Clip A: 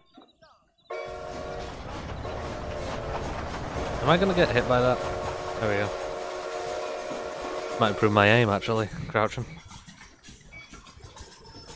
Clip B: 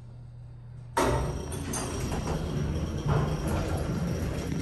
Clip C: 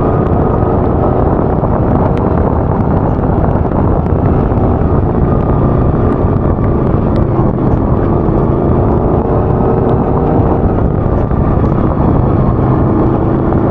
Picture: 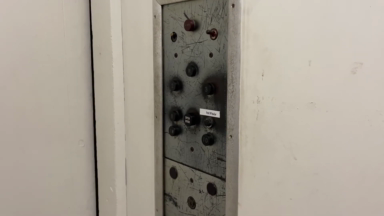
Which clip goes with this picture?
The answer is B